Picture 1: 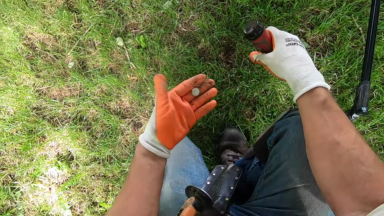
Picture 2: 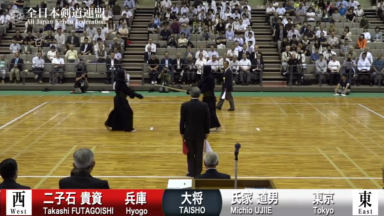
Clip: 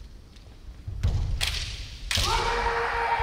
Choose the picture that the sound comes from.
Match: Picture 2